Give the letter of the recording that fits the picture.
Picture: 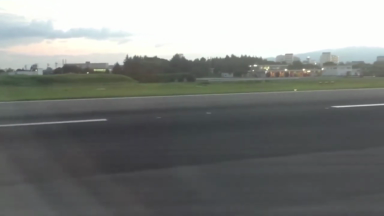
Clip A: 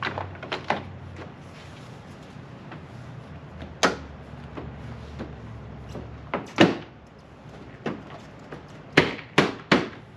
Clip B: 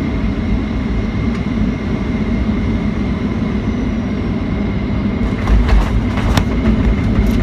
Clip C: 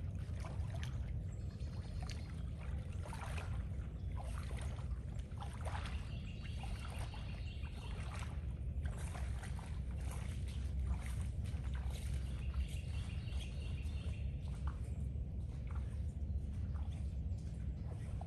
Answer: B